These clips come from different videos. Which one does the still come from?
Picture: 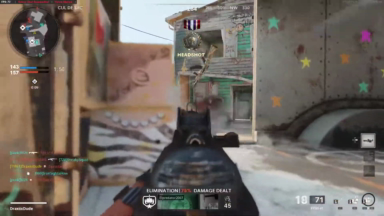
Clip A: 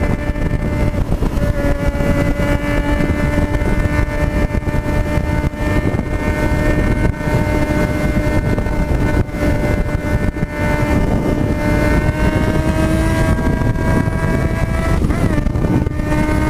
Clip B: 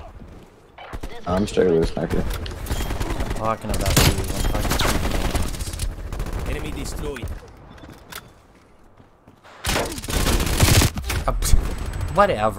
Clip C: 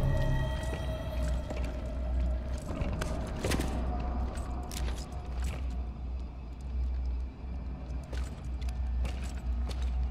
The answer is B